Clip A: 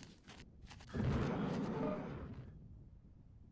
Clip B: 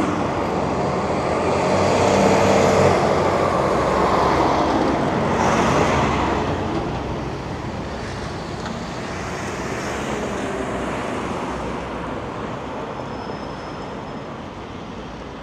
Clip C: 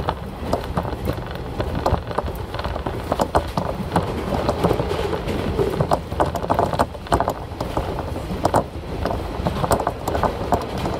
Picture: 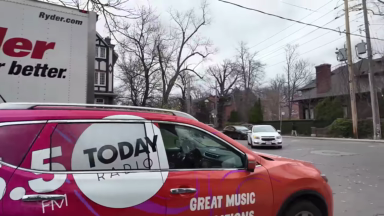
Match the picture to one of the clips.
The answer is B